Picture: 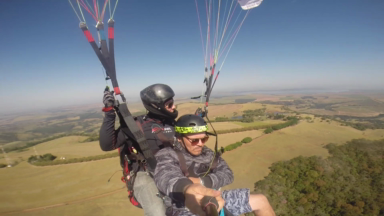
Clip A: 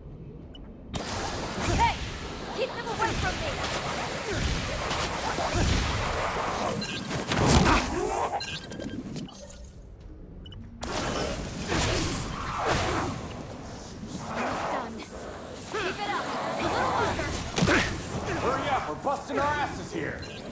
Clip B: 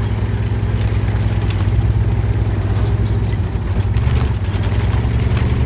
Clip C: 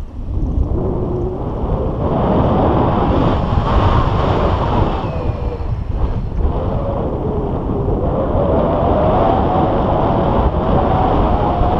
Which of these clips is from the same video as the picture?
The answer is C